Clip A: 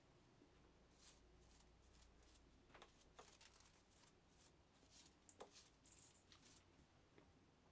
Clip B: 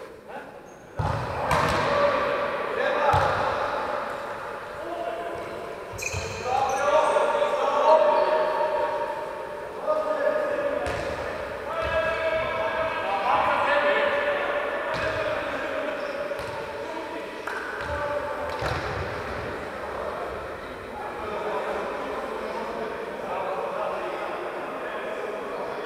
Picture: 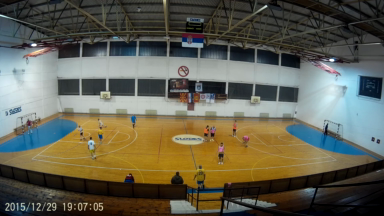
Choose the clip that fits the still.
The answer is B